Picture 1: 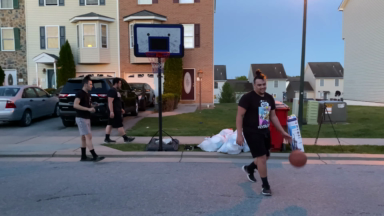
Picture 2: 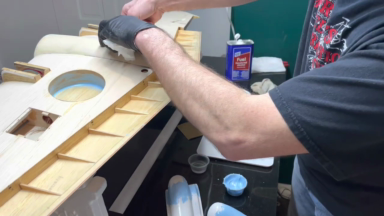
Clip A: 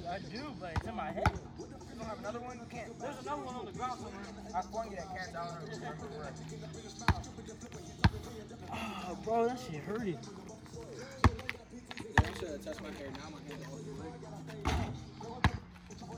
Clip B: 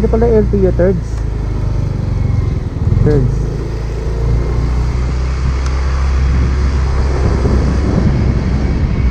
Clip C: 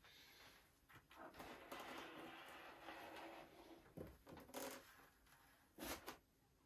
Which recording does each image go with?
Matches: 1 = A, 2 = C